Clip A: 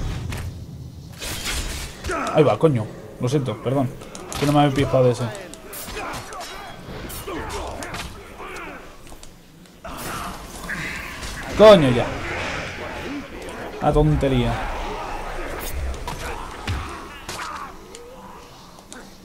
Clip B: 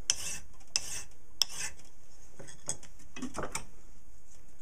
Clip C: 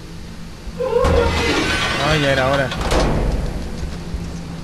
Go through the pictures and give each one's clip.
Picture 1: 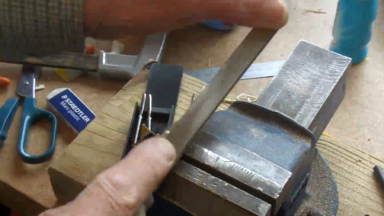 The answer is B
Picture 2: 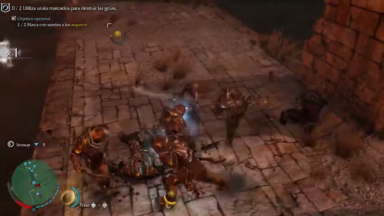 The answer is A